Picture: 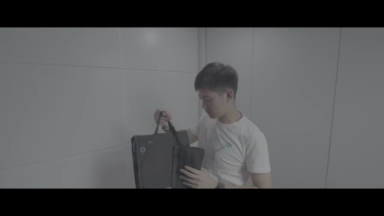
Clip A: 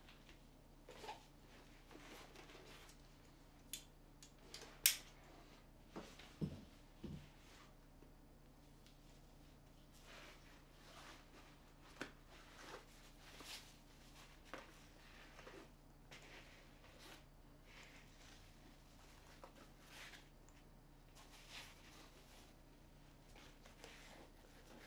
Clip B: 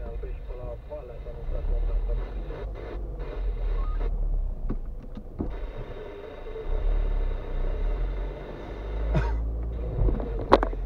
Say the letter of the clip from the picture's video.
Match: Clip A